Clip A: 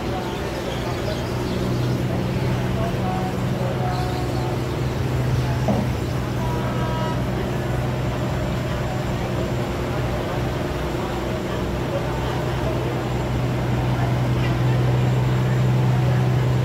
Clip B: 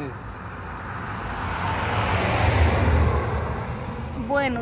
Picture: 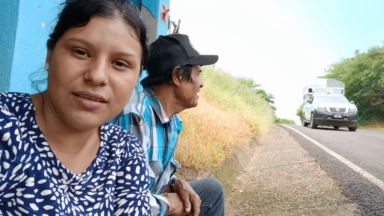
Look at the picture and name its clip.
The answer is B